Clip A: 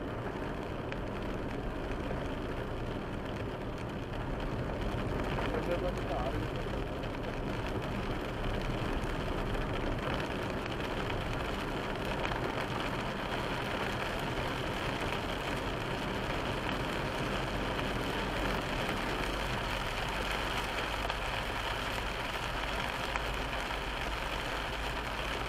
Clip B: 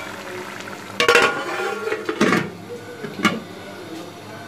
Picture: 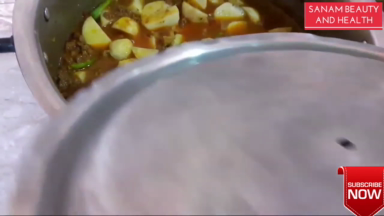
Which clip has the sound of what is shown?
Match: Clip B